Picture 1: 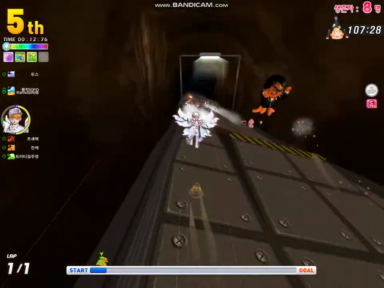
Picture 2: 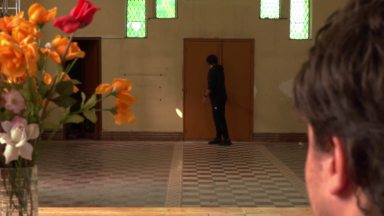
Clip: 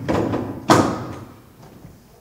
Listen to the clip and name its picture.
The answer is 2